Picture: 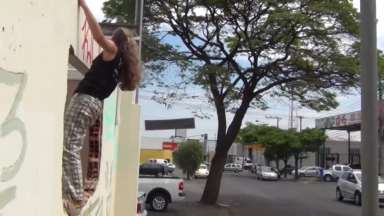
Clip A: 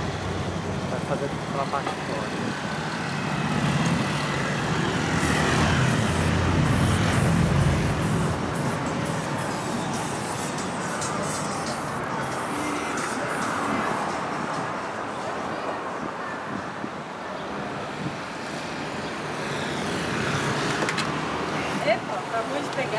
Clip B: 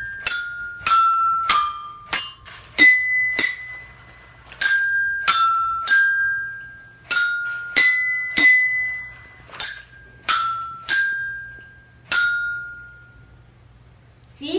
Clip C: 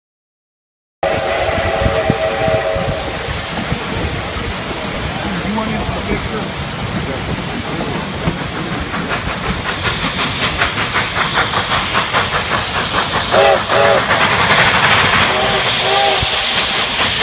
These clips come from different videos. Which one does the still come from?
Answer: A